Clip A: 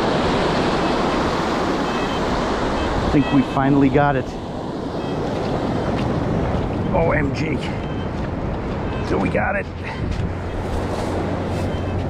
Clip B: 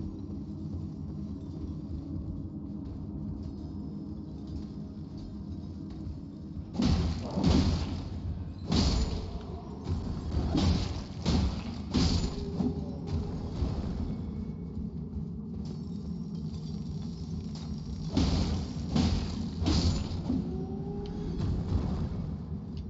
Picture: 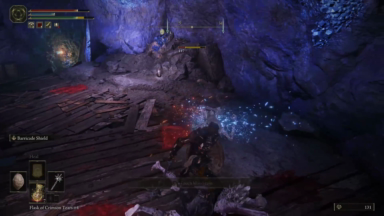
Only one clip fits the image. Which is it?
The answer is B